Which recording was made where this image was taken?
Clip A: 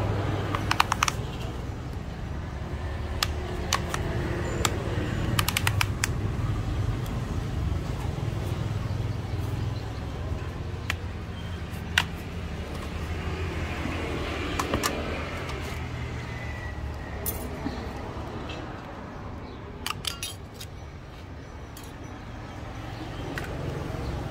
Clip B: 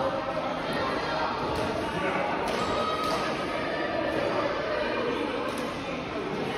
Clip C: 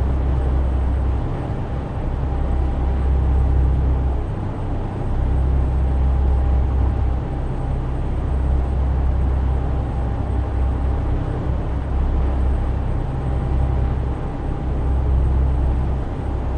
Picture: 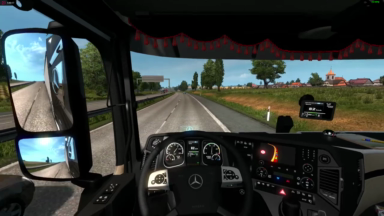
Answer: C